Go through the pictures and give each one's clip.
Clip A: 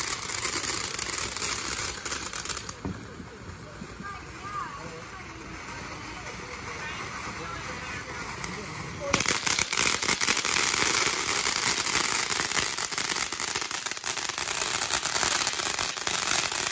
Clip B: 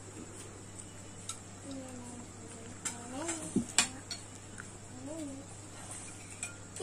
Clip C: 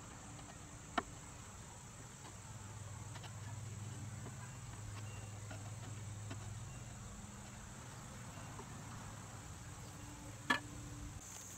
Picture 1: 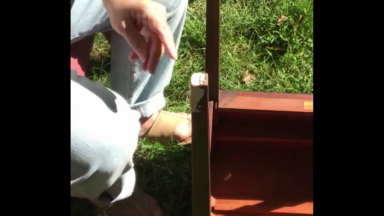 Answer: C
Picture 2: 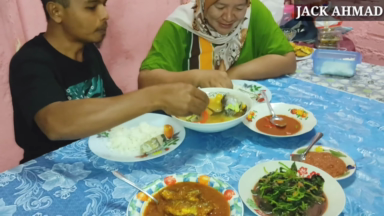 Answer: B